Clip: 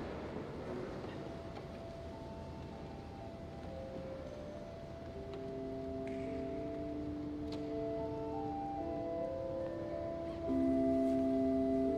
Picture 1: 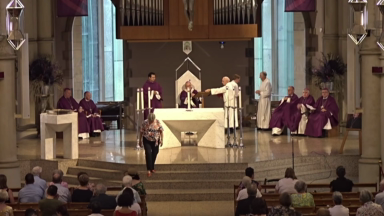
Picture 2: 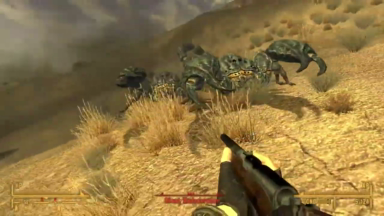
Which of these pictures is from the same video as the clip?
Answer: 1